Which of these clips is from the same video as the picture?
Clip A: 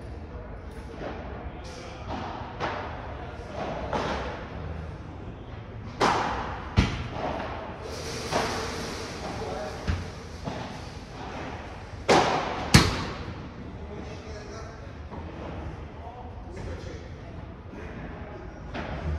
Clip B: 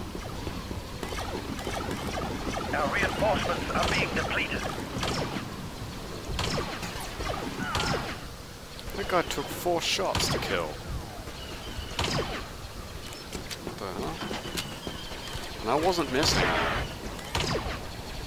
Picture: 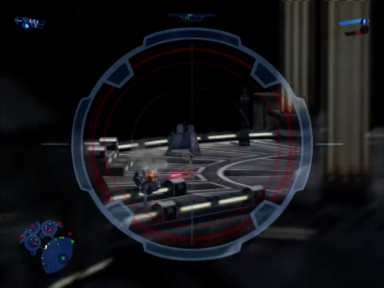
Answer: B